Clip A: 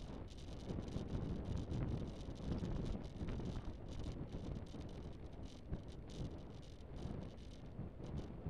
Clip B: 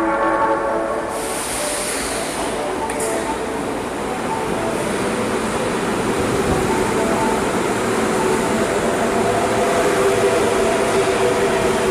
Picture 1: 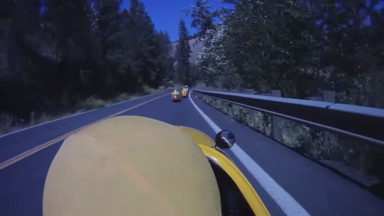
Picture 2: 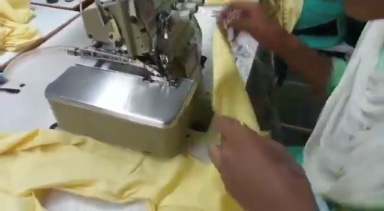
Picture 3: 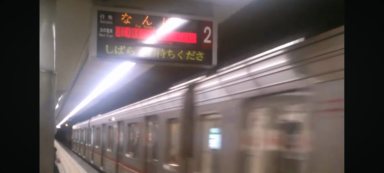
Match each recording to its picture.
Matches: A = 1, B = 3